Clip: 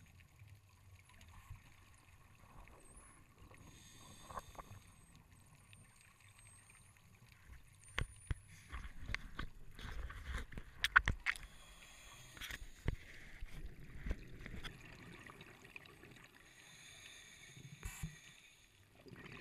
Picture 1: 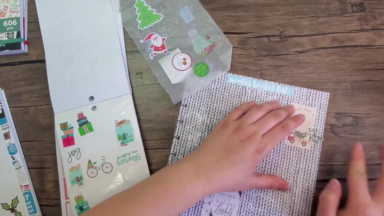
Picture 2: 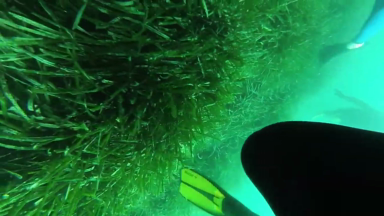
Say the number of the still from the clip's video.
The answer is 2